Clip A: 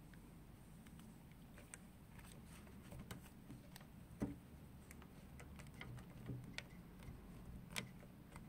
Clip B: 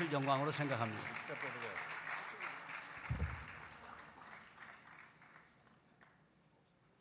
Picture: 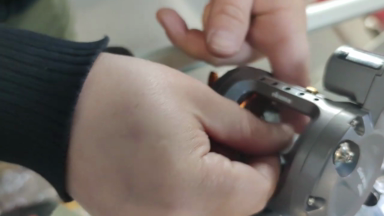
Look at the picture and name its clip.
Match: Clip A